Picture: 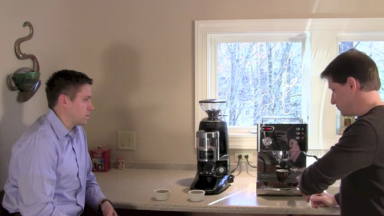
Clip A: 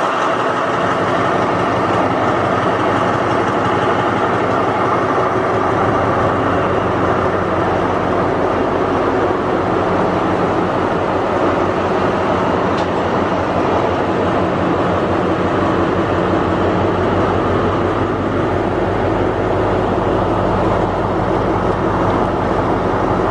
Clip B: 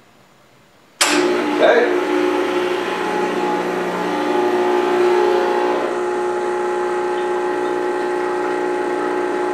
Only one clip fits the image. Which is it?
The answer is B